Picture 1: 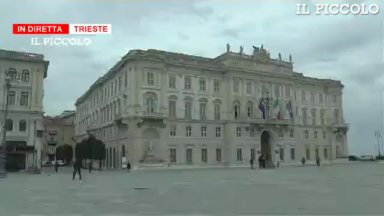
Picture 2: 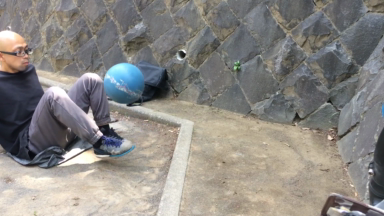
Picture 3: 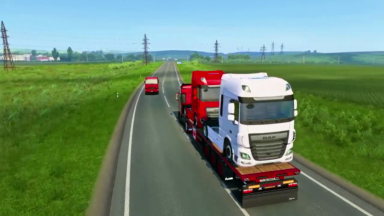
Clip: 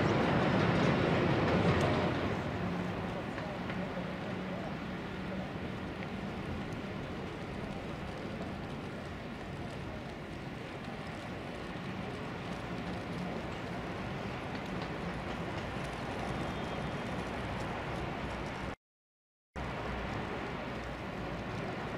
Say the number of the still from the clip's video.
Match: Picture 1